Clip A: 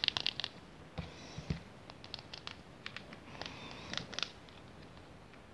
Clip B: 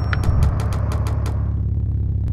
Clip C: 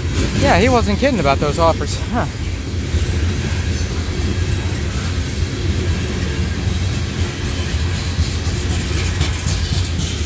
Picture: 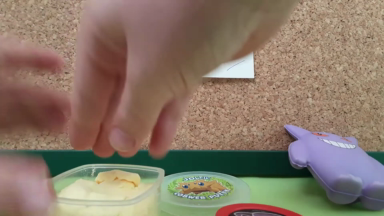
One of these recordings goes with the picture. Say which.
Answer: A